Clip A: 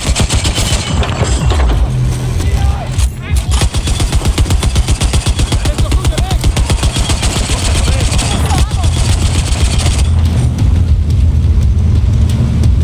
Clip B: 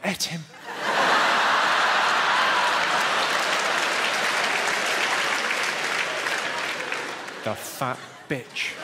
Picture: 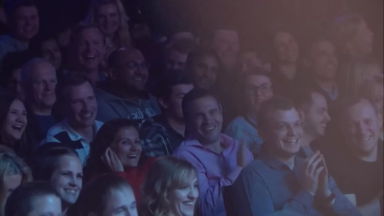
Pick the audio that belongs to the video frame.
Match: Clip B